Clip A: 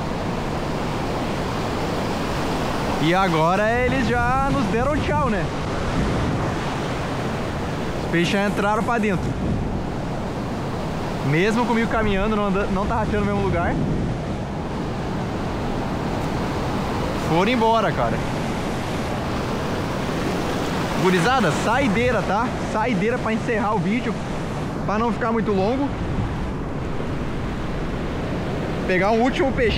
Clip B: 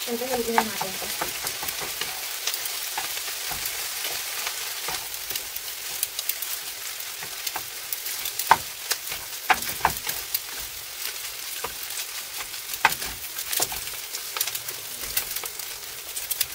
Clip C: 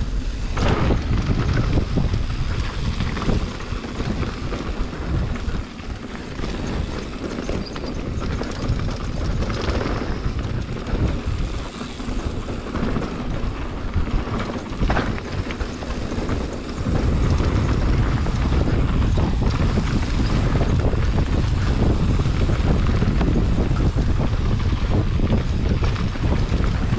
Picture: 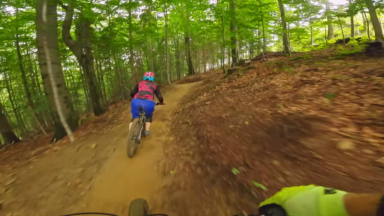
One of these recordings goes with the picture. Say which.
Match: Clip C